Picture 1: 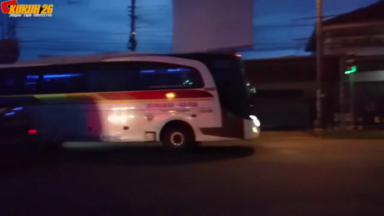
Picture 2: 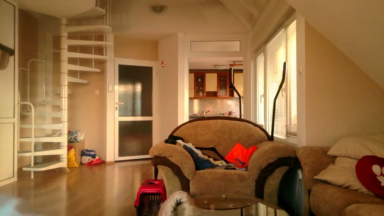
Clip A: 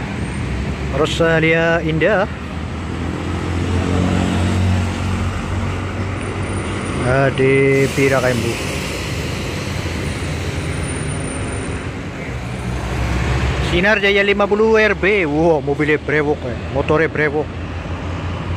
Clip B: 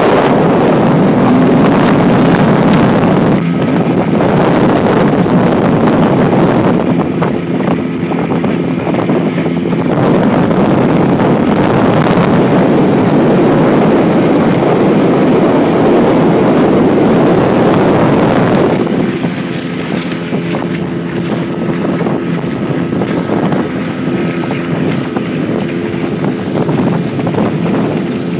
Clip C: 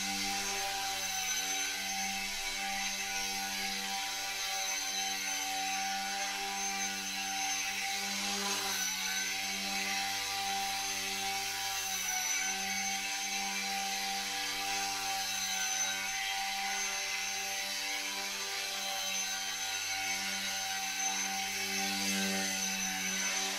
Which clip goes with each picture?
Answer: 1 A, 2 C